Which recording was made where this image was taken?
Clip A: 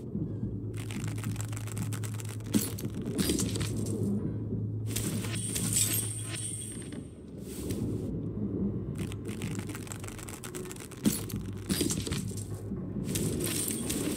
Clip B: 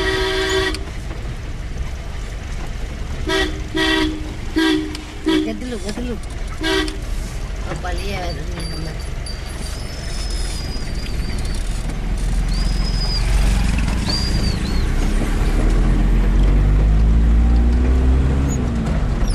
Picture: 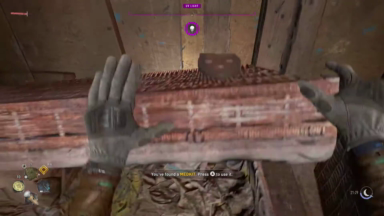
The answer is A